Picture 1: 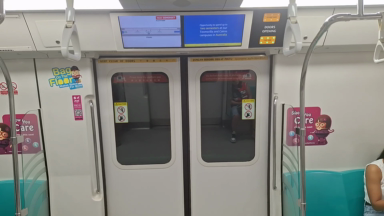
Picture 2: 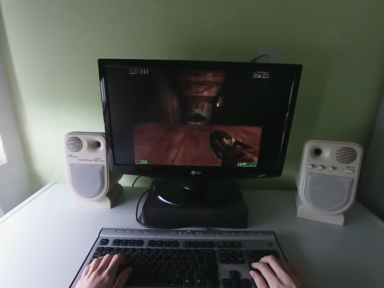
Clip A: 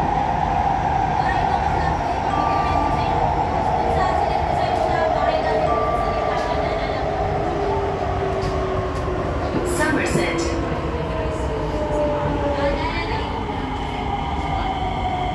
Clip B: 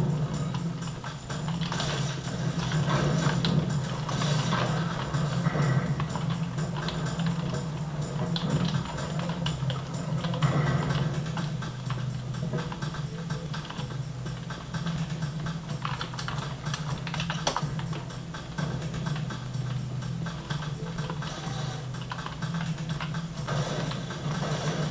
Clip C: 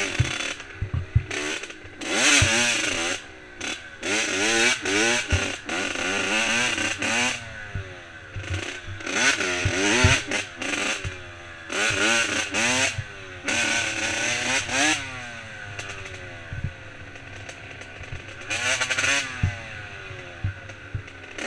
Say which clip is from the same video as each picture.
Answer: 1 A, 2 B